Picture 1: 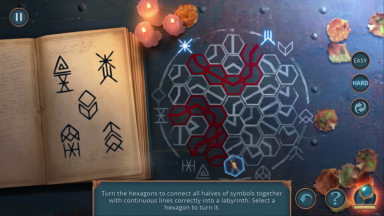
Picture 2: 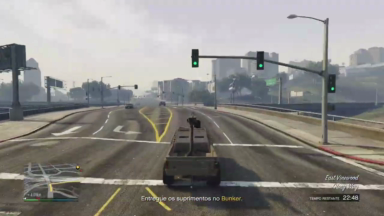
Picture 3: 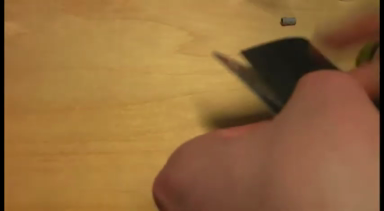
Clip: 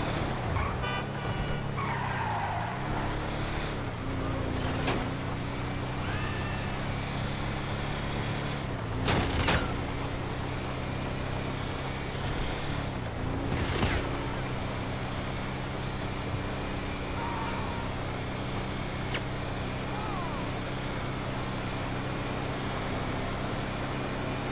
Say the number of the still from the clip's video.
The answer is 2